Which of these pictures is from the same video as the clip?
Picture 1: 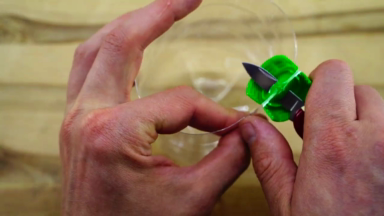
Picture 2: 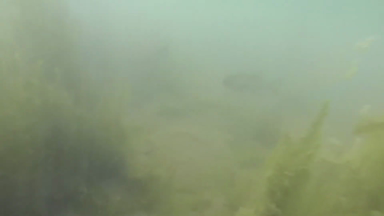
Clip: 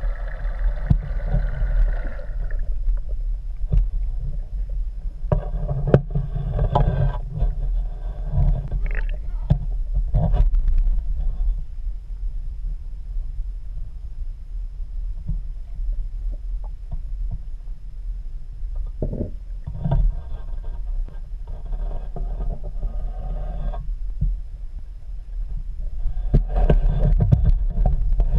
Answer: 2